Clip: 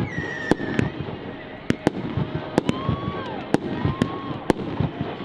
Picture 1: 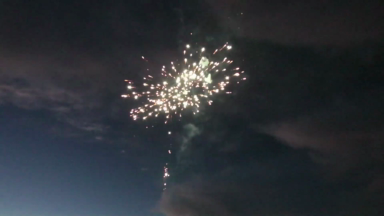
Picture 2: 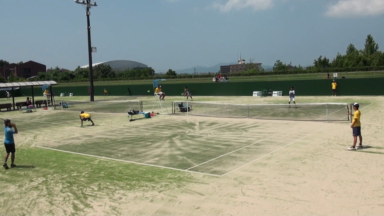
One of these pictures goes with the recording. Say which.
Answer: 1